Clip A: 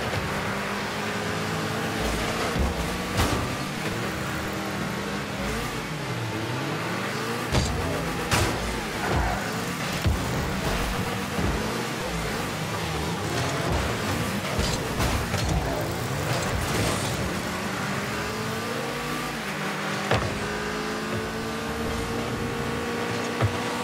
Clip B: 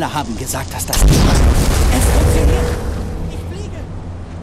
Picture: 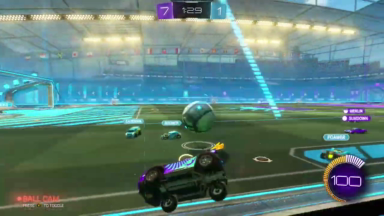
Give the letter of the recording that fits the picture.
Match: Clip A